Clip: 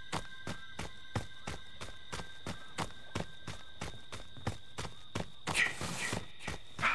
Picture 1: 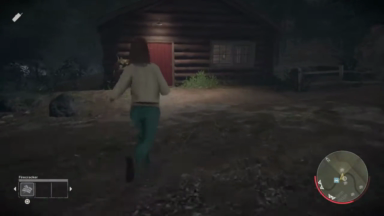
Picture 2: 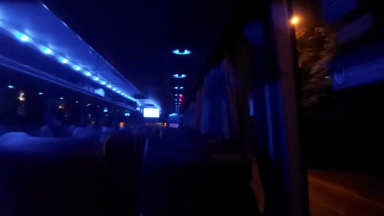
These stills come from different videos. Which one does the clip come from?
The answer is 1